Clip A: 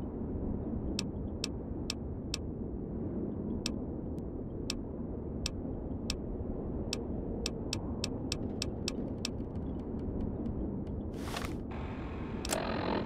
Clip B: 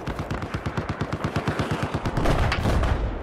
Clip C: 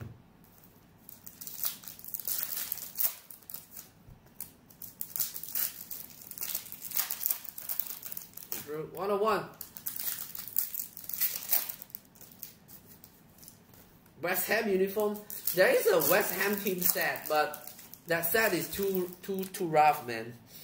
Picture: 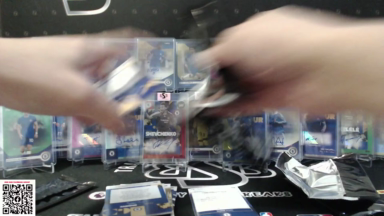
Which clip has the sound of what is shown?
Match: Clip C